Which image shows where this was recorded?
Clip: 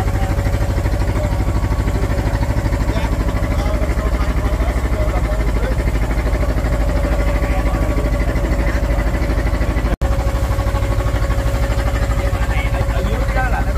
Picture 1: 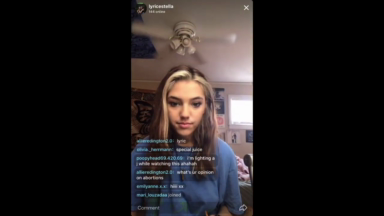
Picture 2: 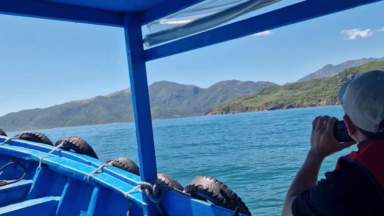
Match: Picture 2